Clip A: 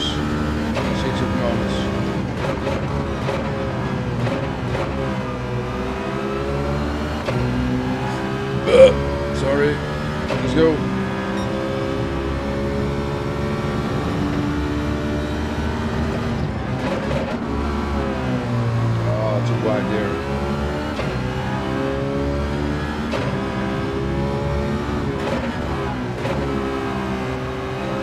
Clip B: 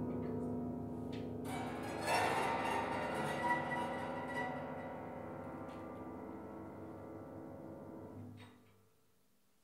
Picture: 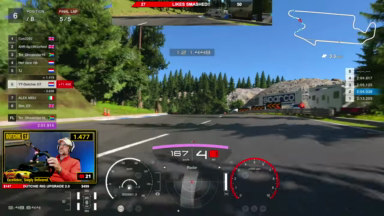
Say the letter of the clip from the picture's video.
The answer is A